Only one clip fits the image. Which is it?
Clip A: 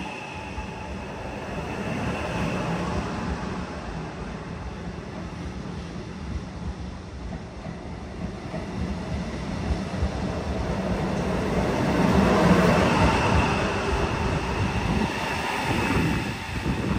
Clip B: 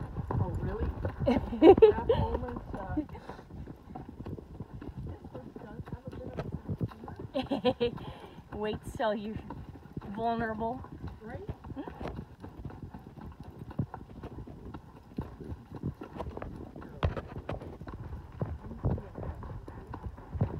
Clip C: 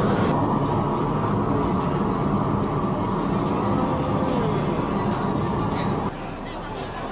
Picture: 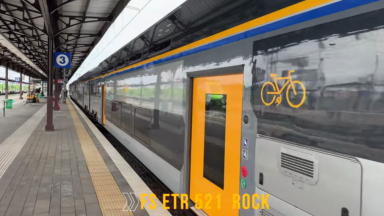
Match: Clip A